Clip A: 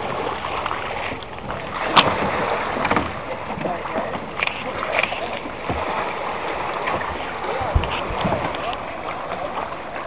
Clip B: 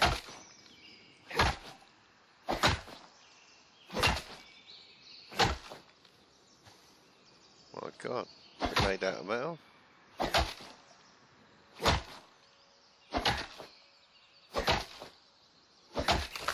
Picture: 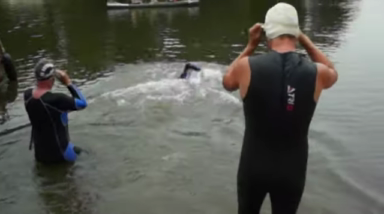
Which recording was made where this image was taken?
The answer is A